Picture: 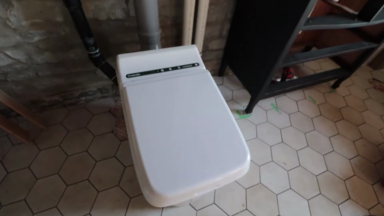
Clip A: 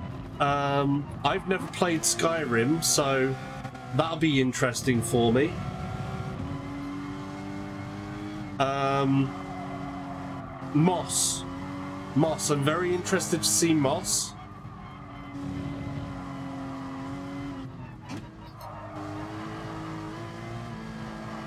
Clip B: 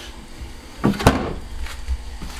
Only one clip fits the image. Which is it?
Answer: B